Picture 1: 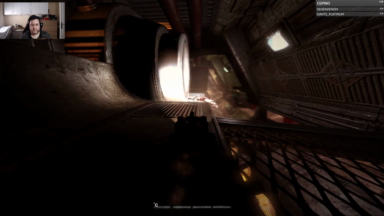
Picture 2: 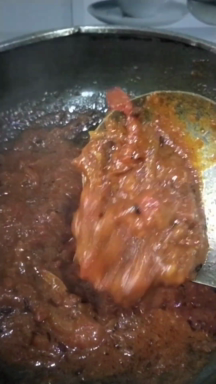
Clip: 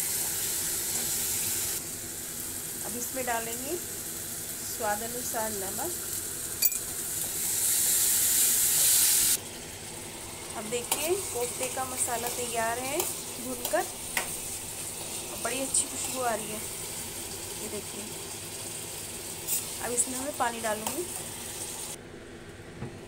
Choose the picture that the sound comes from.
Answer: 2